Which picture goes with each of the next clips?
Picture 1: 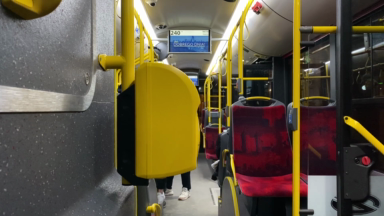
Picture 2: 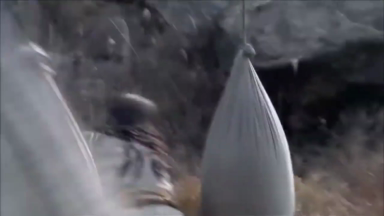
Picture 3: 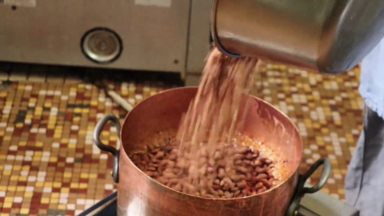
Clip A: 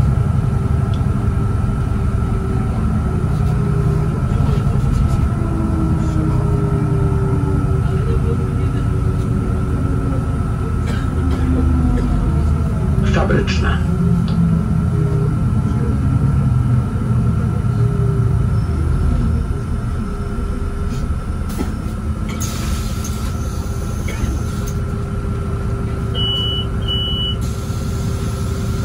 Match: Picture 1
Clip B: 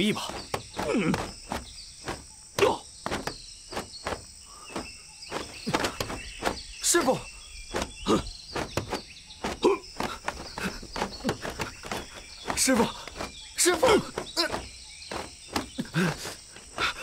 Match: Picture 2